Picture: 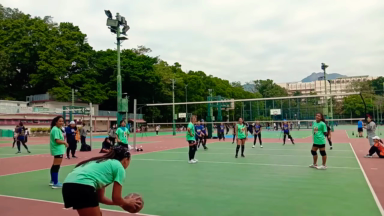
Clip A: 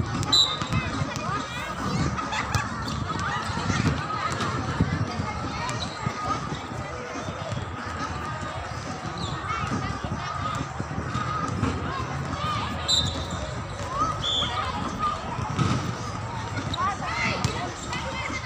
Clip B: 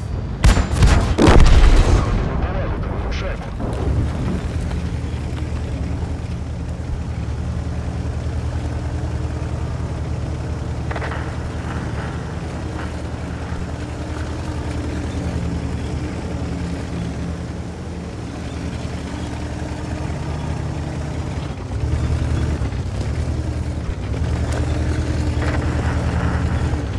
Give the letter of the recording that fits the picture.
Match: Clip A